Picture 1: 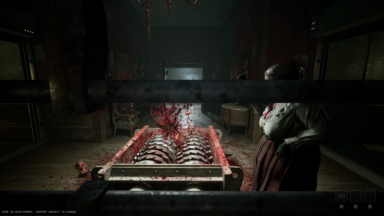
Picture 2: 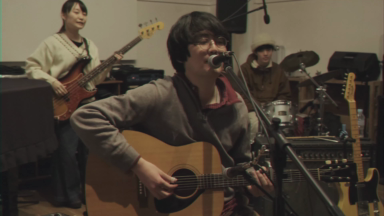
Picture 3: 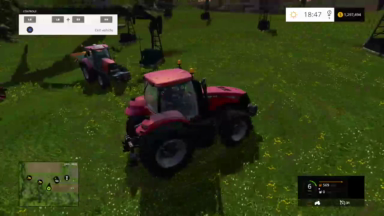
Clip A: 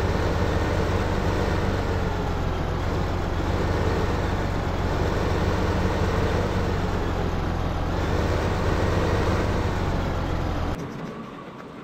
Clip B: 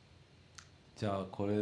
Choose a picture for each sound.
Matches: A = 3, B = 2